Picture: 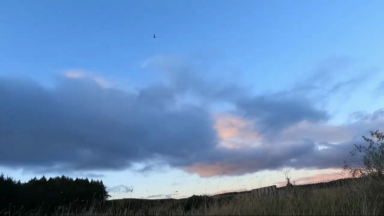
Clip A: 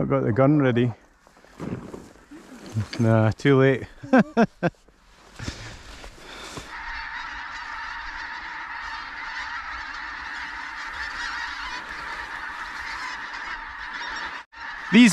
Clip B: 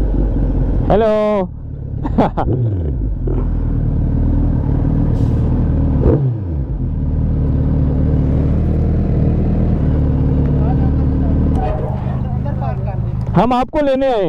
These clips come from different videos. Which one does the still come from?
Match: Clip A